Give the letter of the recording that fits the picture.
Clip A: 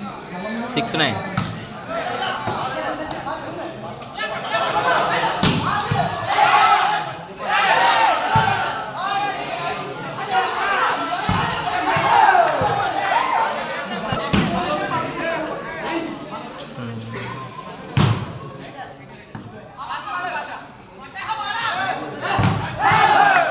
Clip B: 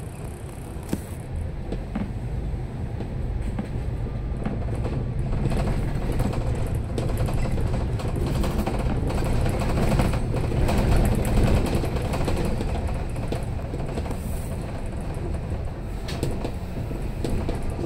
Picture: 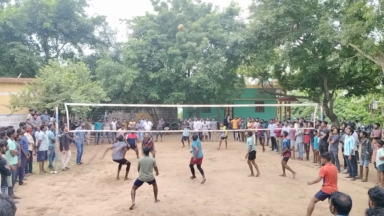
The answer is A